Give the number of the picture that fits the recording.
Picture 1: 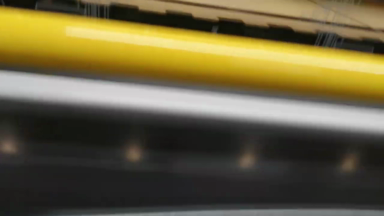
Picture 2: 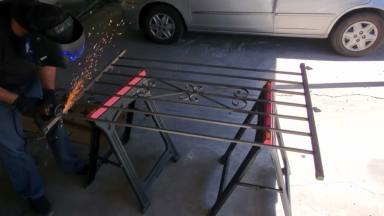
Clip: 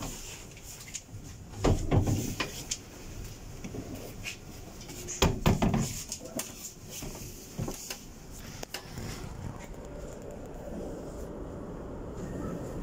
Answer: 1